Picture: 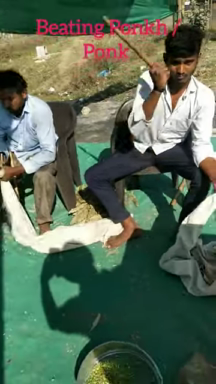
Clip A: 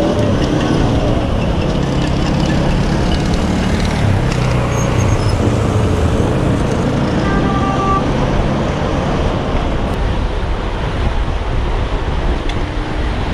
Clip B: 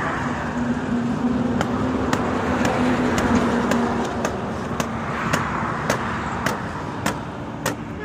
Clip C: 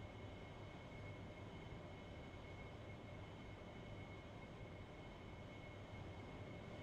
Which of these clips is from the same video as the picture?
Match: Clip B